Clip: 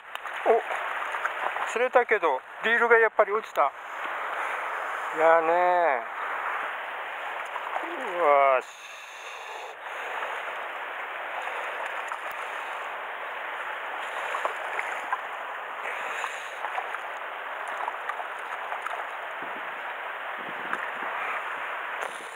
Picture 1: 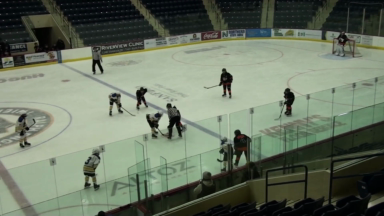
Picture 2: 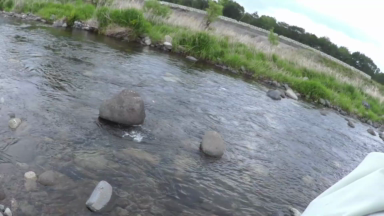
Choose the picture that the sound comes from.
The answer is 2